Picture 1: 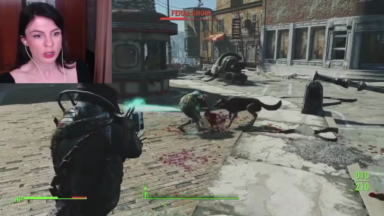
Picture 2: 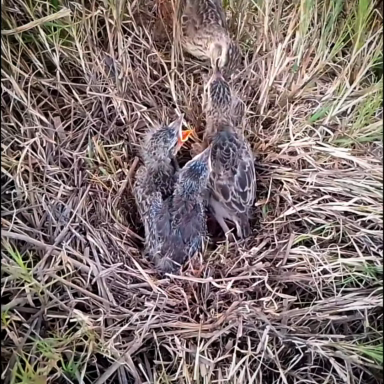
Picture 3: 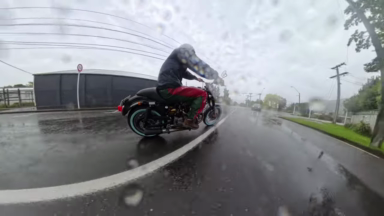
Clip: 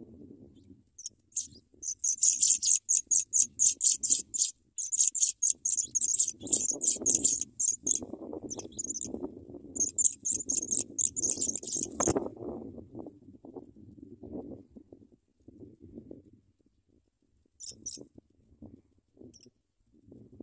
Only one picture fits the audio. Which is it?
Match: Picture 2